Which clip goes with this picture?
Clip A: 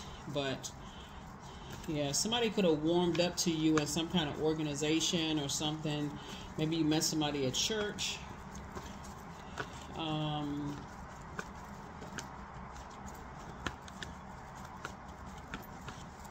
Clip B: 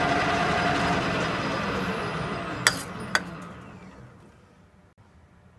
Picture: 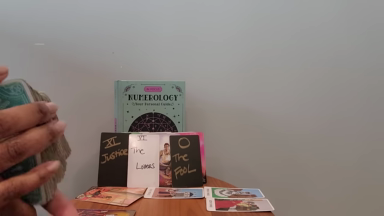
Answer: A